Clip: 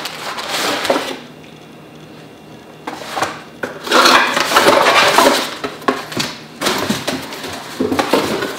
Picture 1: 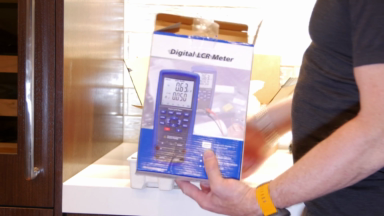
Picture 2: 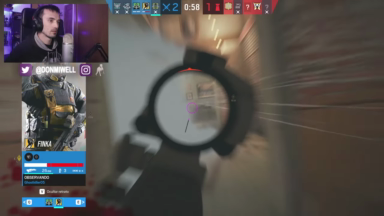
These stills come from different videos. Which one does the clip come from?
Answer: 1